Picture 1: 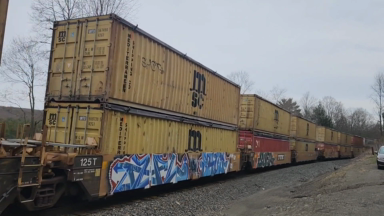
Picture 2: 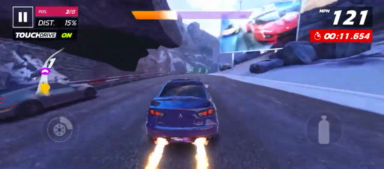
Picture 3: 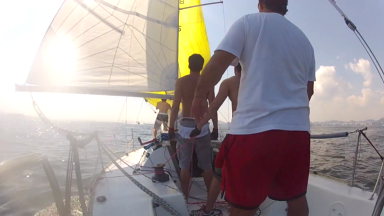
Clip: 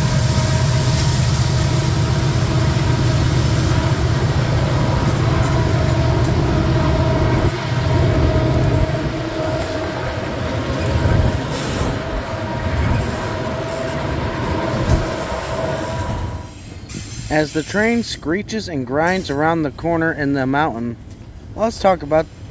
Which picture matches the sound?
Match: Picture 1